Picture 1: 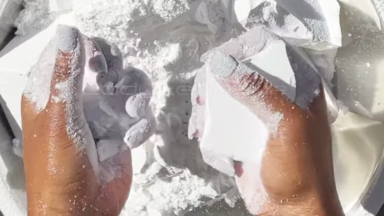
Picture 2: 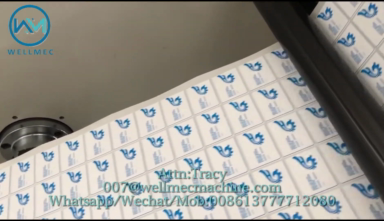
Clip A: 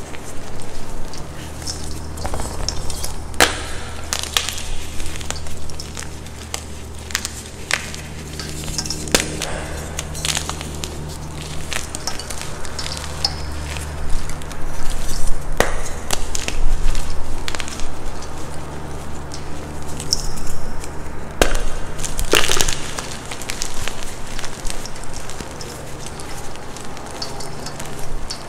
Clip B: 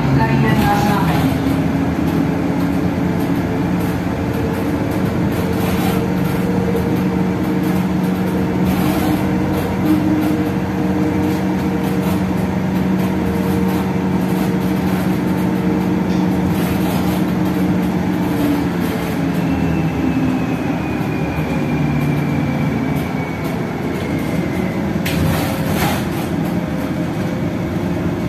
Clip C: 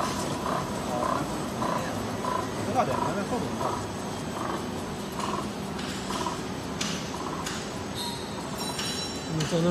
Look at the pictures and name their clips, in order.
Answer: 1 A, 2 C